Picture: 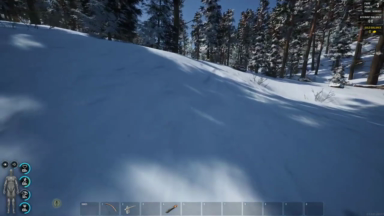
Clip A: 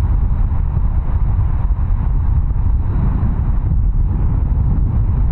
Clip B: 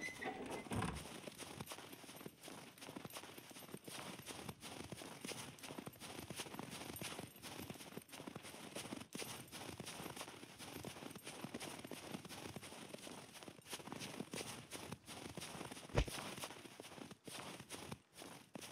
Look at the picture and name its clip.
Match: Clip B